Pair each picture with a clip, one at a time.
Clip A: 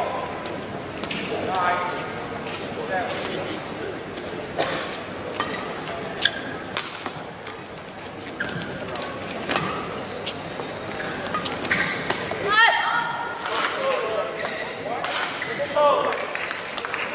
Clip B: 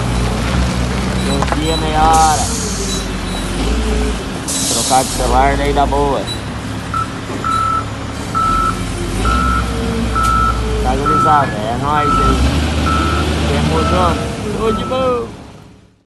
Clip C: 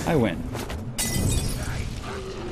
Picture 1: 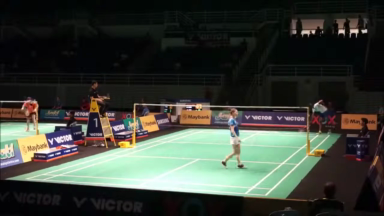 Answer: A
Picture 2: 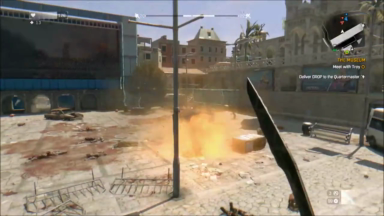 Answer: C